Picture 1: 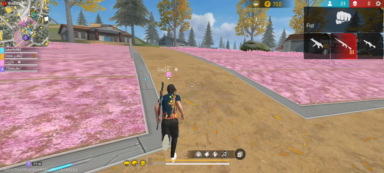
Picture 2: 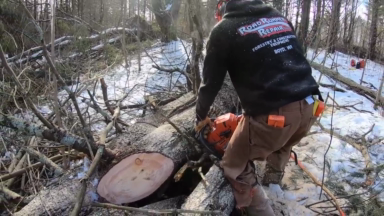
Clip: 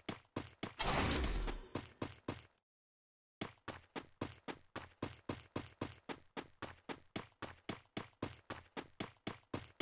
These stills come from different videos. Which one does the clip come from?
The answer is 1